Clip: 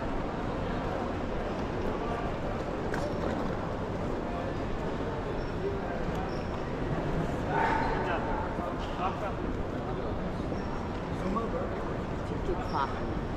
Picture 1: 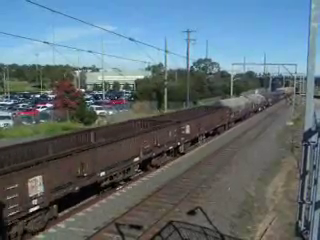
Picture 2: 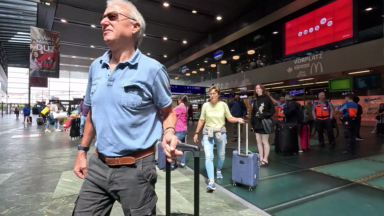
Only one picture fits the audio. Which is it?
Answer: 2